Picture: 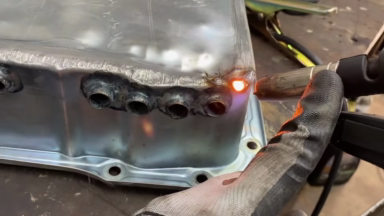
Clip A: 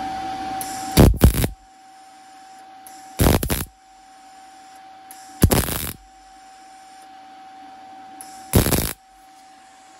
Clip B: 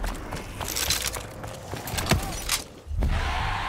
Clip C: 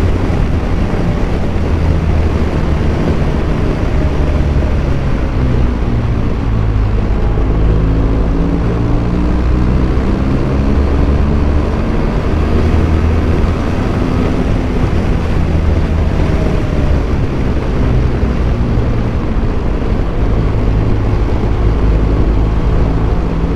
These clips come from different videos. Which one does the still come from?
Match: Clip A